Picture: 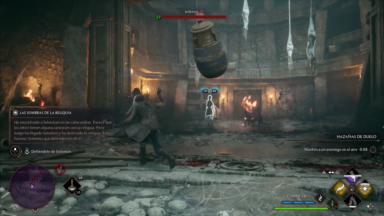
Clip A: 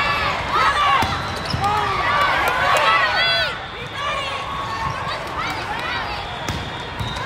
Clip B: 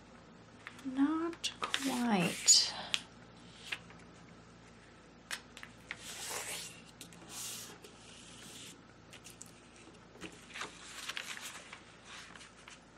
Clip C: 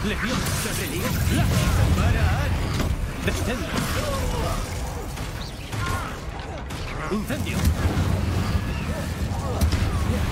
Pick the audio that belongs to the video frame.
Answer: C